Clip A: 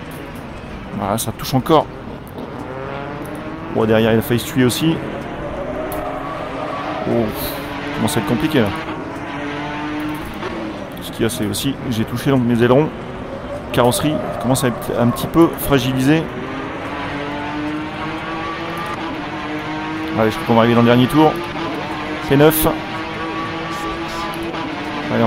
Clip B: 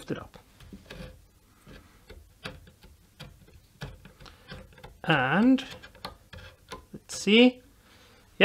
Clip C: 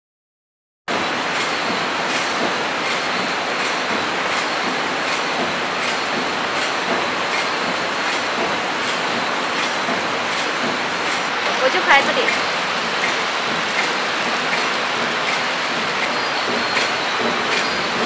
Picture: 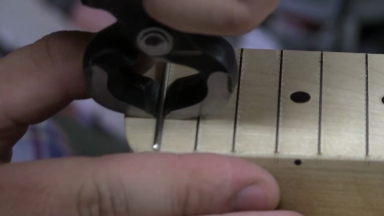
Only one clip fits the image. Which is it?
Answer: B